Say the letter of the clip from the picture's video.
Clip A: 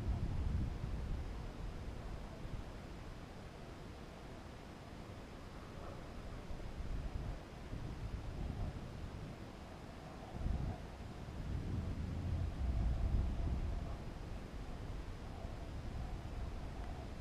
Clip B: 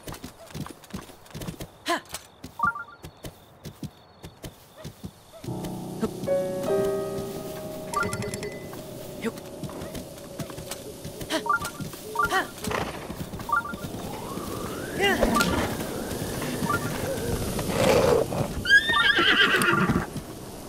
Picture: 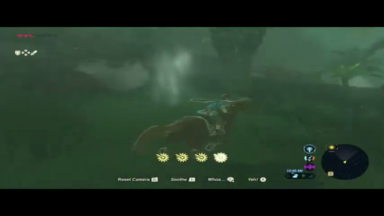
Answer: B